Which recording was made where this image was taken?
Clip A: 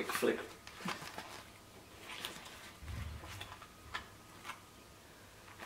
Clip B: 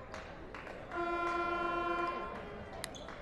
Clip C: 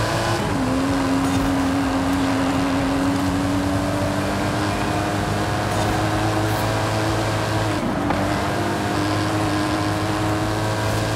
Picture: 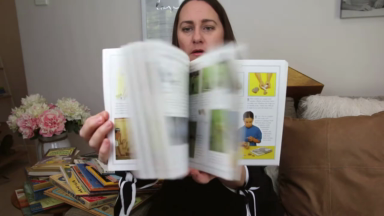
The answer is A